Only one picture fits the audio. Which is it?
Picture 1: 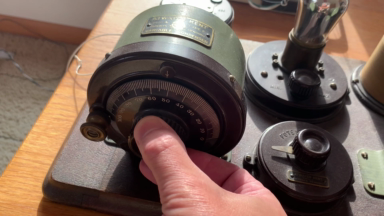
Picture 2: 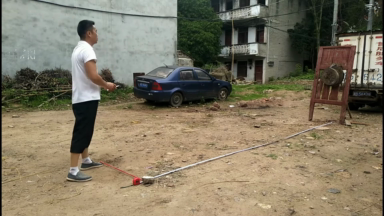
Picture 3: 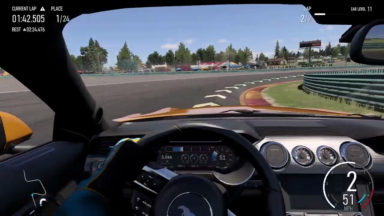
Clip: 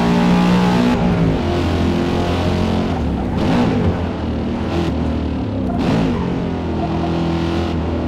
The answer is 3